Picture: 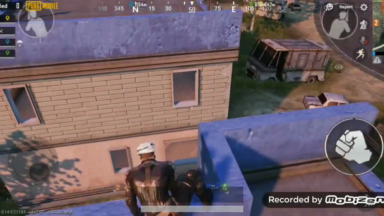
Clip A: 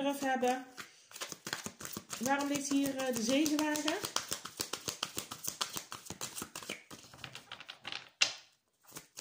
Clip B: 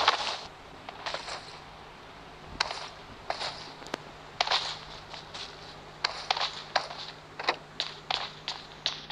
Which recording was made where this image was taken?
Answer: B